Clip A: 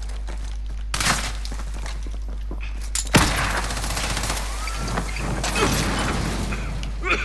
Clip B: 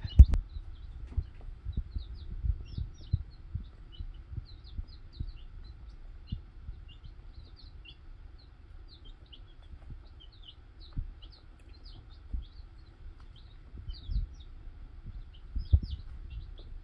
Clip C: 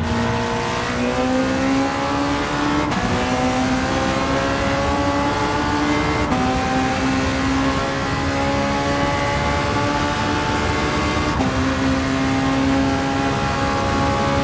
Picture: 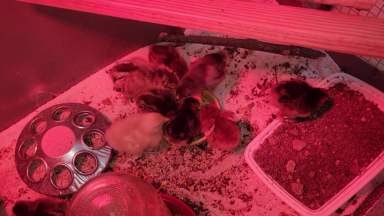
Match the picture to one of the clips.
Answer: B